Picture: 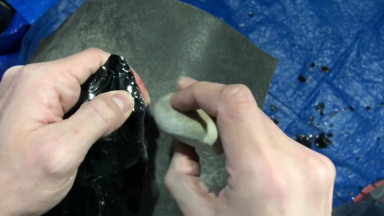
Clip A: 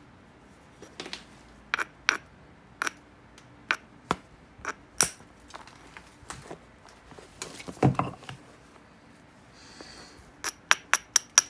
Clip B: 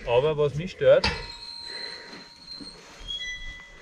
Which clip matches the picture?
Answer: A